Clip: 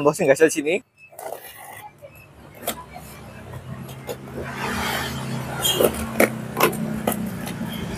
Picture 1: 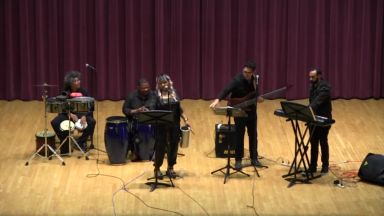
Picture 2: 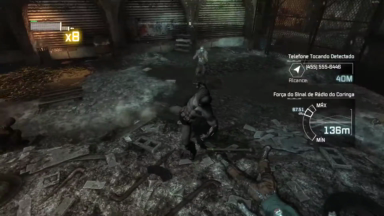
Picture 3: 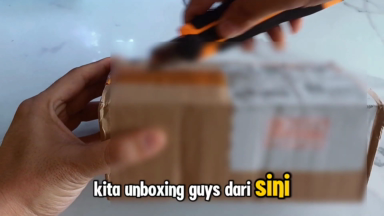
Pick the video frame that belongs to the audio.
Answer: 3